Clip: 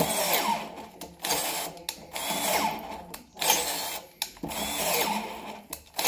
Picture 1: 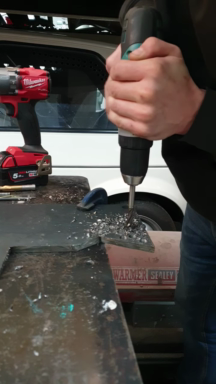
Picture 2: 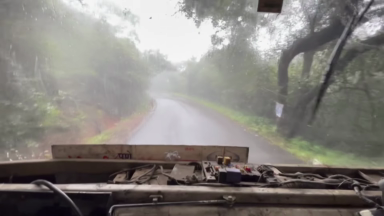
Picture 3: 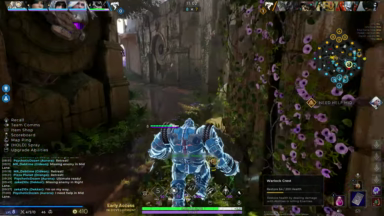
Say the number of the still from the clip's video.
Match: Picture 1